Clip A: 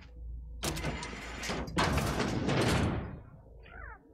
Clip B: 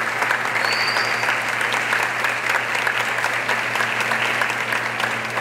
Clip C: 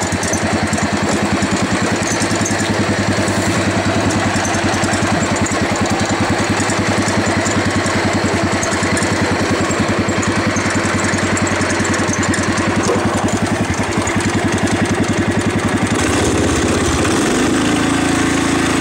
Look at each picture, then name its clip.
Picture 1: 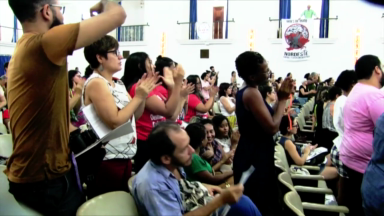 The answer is B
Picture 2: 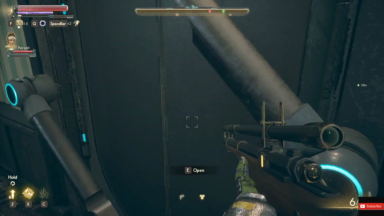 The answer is A